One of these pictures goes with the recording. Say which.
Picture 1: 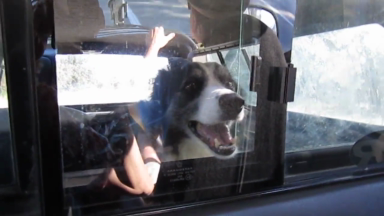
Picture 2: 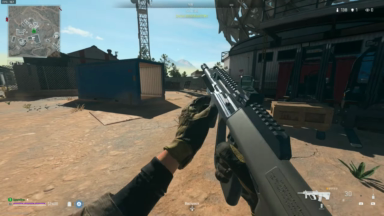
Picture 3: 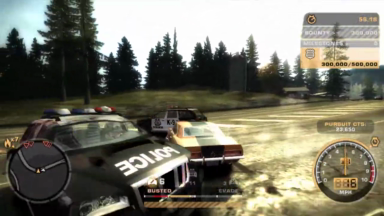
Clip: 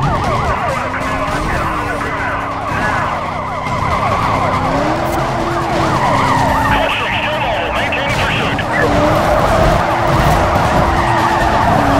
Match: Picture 3